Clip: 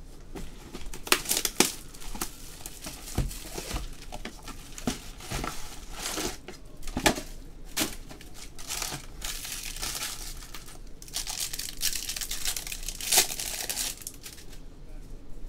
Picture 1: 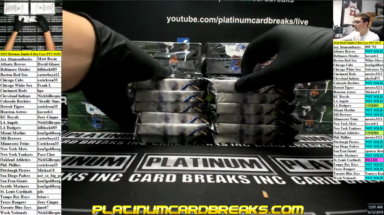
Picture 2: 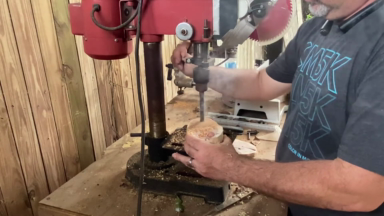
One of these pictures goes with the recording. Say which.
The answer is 1